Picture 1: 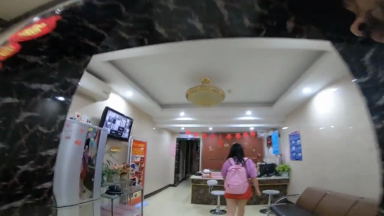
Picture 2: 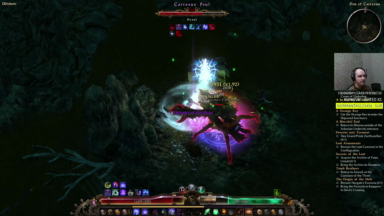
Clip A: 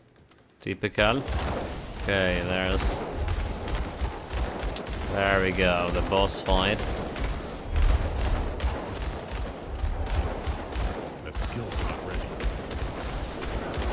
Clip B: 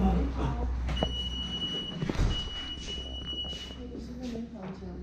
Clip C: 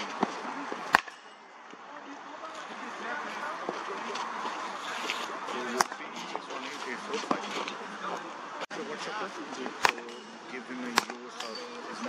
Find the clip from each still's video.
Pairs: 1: B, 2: A